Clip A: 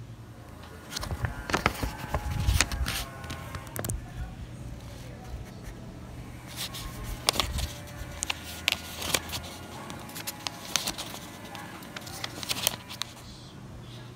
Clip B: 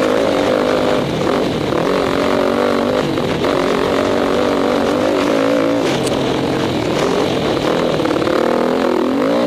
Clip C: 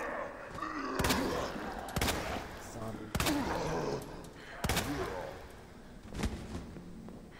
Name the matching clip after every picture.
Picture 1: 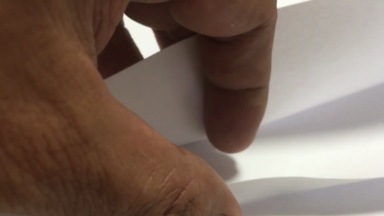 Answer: A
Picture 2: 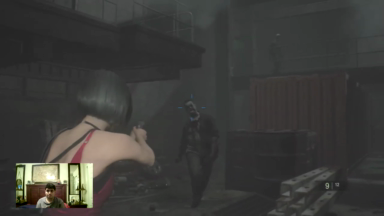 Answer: C